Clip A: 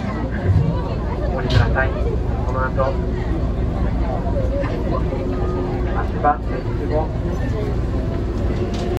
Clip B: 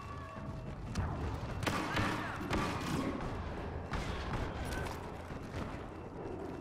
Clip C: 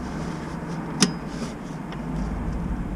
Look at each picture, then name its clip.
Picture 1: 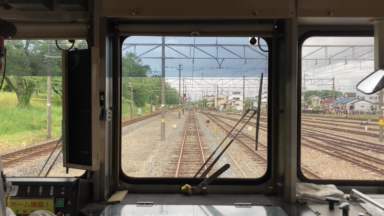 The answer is A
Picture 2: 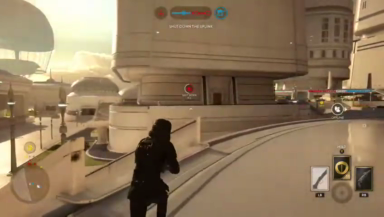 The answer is B